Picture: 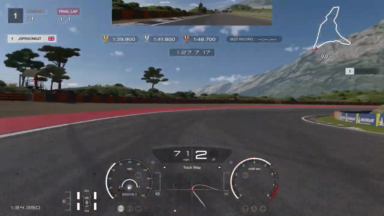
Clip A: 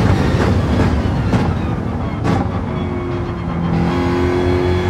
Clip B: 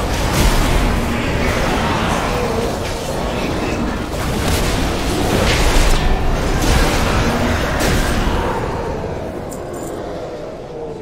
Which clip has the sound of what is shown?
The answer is A